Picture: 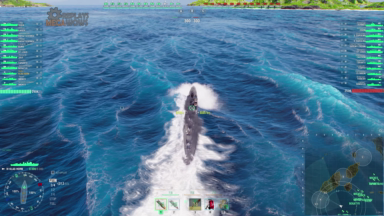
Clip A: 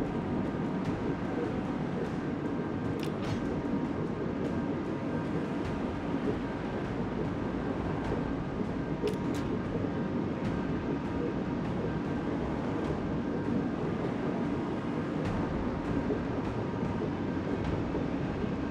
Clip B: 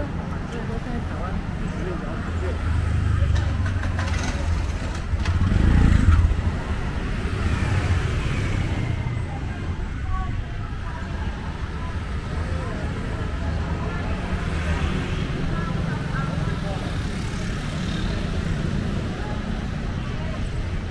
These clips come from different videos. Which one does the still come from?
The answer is A